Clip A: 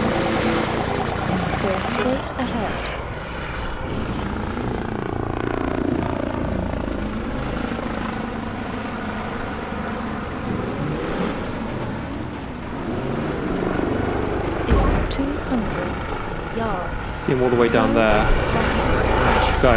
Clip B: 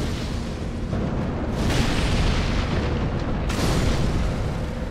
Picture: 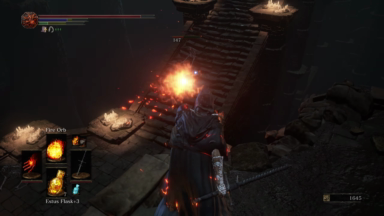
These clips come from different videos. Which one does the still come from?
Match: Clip B